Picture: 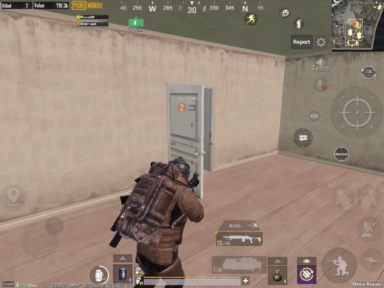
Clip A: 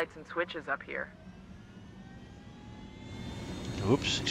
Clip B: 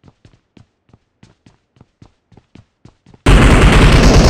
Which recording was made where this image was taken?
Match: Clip B